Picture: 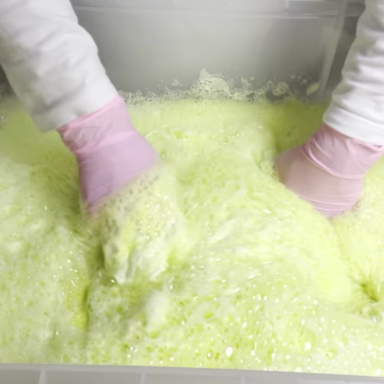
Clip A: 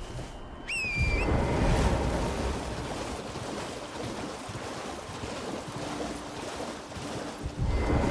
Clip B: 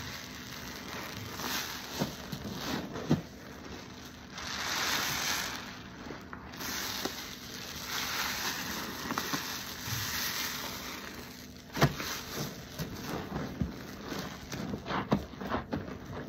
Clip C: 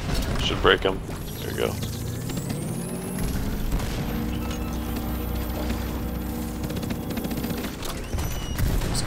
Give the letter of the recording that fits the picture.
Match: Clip B